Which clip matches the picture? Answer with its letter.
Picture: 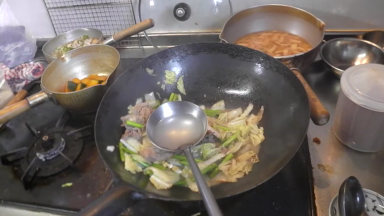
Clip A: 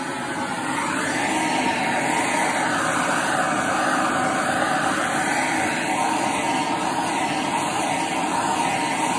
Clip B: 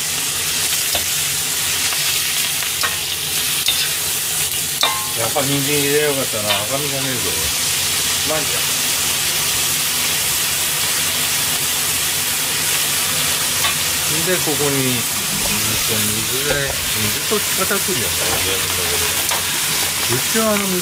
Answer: B